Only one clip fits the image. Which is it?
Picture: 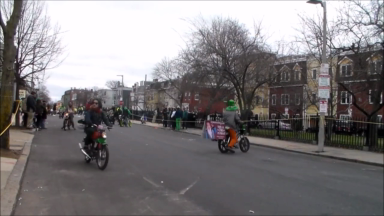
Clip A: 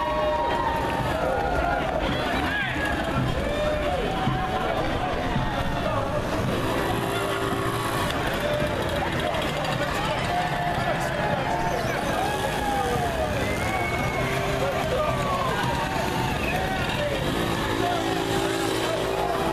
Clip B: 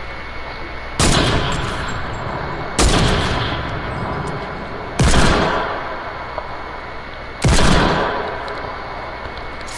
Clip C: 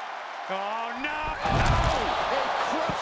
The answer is A